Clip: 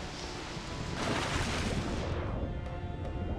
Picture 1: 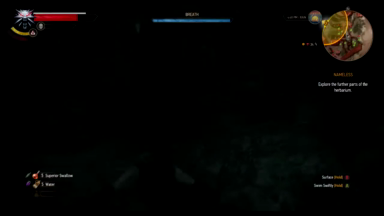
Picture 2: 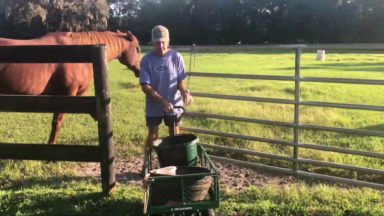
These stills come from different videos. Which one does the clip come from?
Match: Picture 1